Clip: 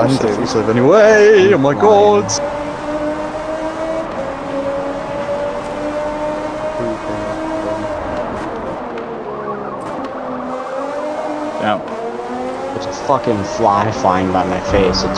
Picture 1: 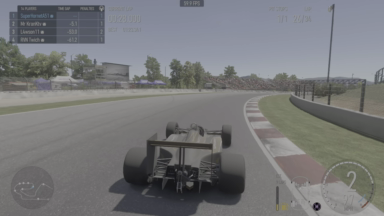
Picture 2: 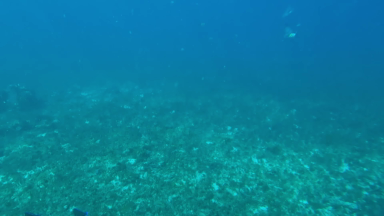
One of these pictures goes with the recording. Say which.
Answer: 1